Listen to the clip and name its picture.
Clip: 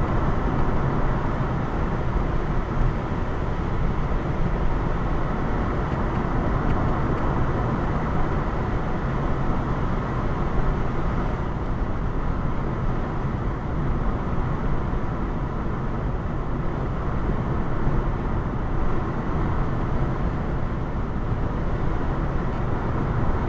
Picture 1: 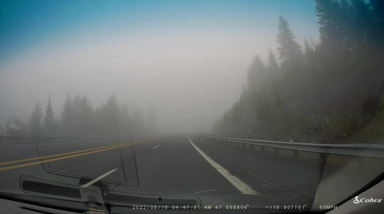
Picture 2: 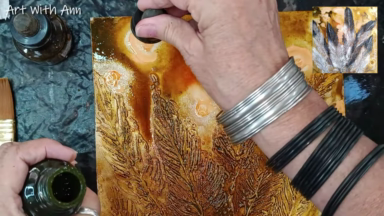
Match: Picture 1